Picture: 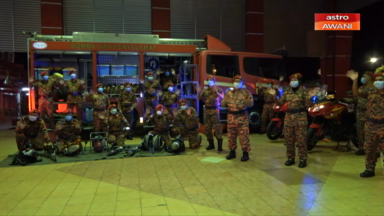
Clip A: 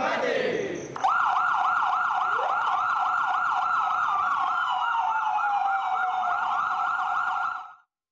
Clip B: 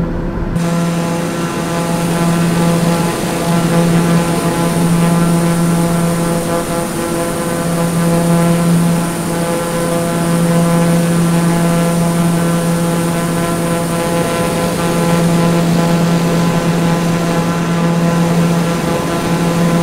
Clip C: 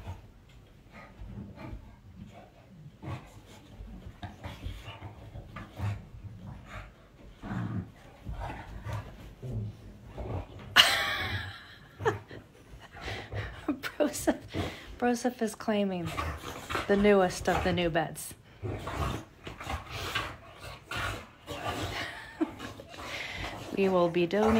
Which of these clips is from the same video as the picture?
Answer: A